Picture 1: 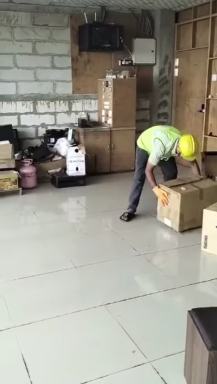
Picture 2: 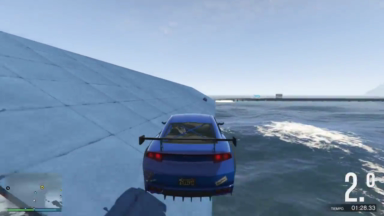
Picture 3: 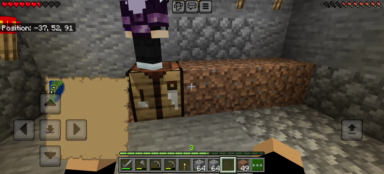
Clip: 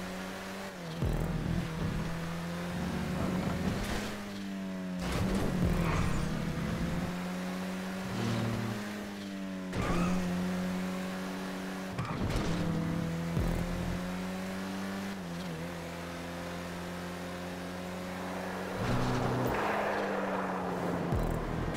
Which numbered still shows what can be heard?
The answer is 2